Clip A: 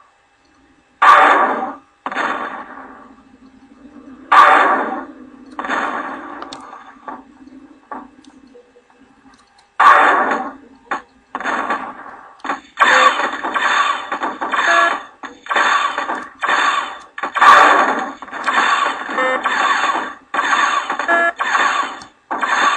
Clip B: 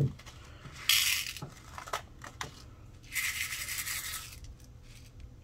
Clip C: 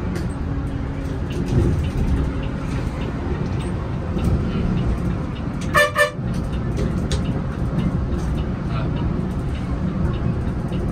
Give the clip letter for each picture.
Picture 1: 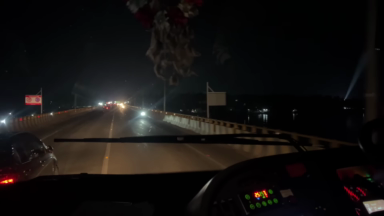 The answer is C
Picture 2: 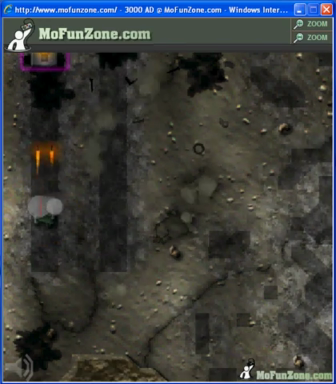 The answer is A